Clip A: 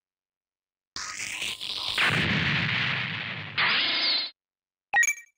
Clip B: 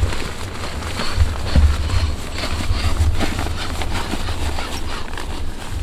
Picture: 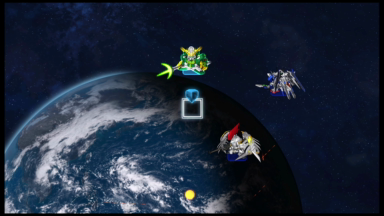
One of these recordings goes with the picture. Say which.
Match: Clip A